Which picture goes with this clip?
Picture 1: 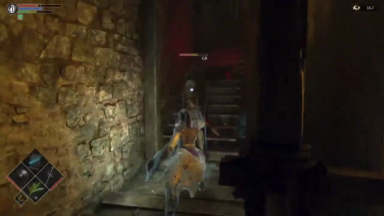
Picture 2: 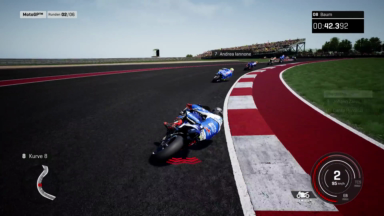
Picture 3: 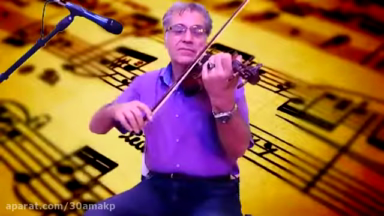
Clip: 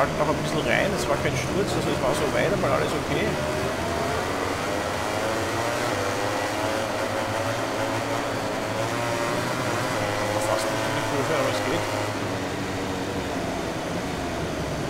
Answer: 2